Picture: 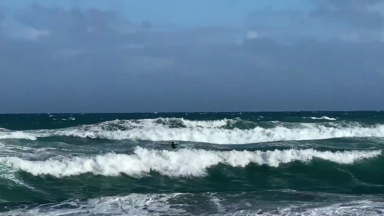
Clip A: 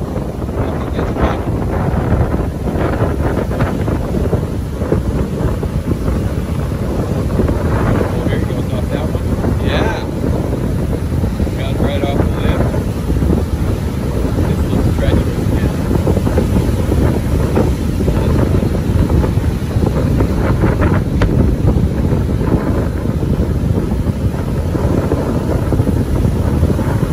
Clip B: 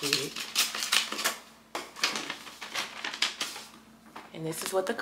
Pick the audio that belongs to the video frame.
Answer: A